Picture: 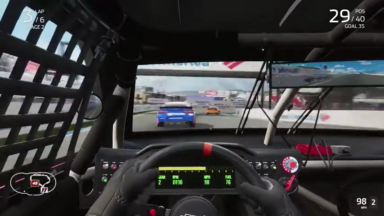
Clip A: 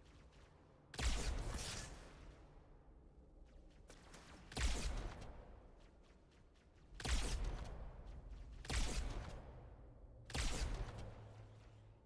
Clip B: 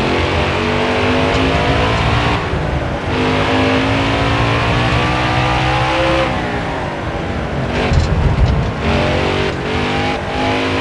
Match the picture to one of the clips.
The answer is B